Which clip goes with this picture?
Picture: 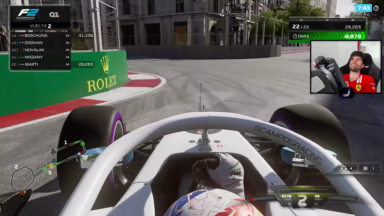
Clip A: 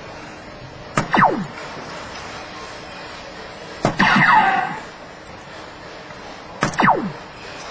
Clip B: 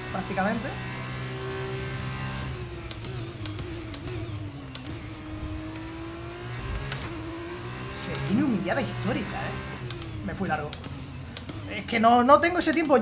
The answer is B